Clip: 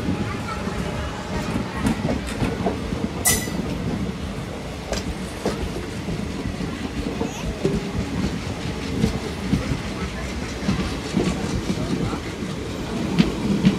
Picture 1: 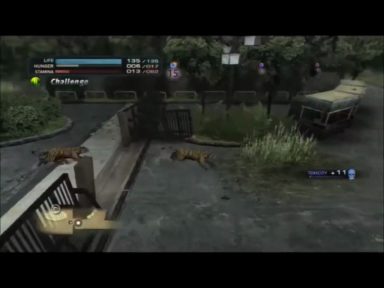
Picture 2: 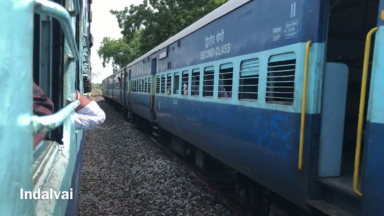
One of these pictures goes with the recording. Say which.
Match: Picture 2